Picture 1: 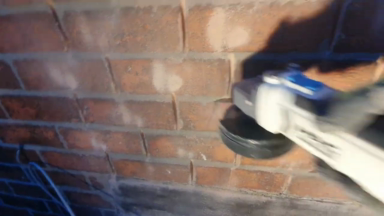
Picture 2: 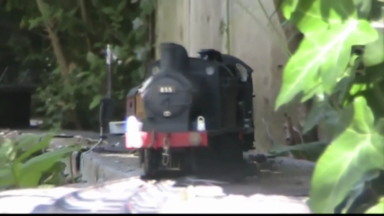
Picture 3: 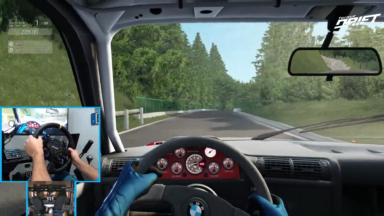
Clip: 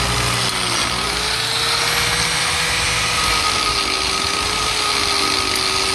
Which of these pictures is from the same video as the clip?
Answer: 1